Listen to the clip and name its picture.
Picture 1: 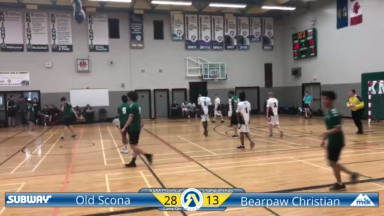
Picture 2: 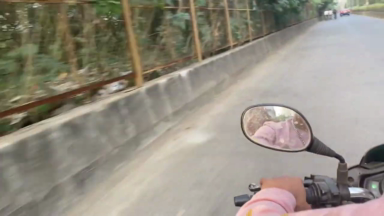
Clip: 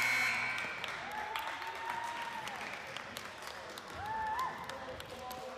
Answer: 1